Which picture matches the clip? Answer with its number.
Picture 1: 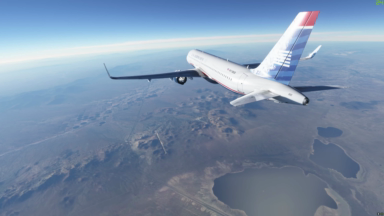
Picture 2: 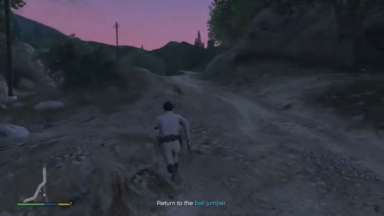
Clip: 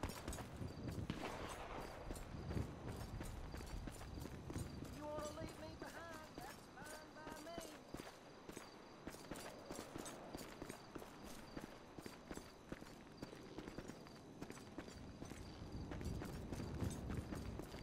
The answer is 2